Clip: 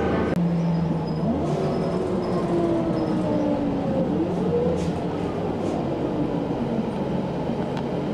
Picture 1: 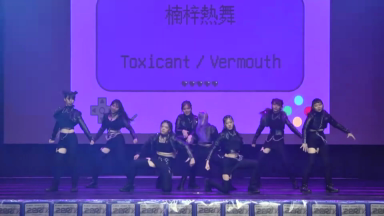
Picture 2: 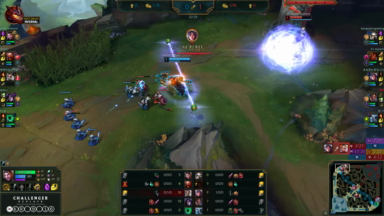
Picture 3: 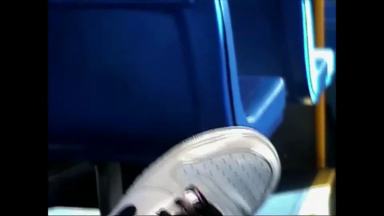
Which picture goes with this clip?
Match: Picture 3